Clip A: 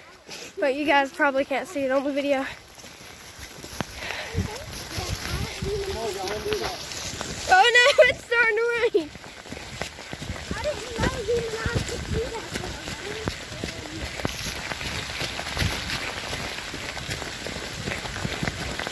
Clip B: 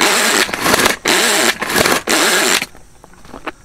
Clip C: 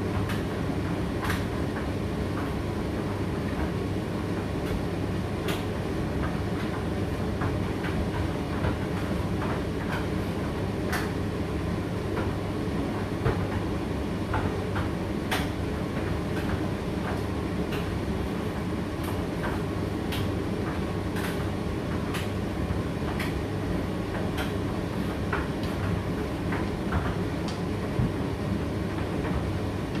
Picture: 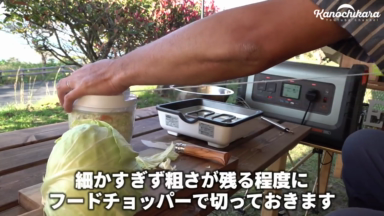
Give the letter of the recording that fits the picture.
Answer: B